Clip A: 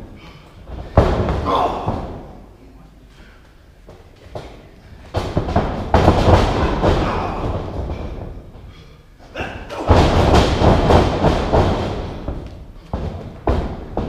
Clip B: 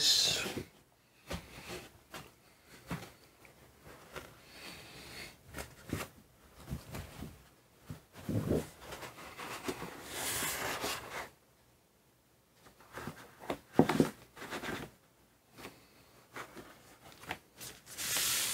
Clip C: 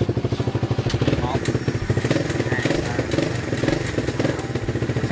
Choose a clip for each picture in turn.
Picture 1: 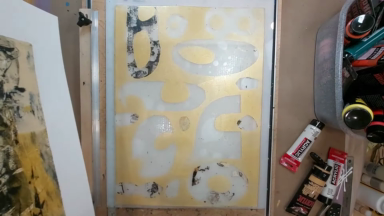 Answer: B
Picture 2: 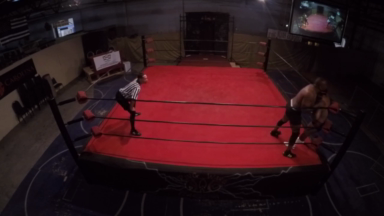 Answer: A